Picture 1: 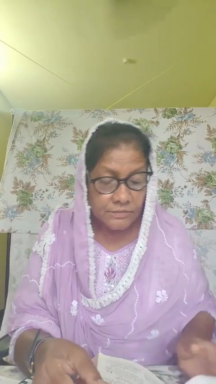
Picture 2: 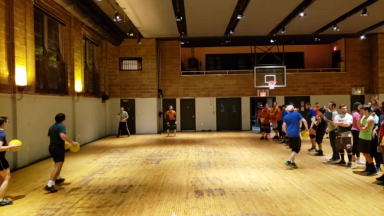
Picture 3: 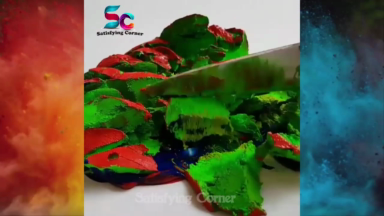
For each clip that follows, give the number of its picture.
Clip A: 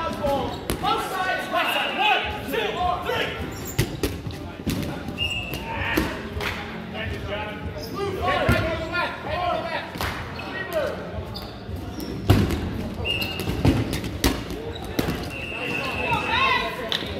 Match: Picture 2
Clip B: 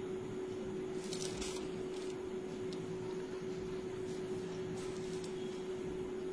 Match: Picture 1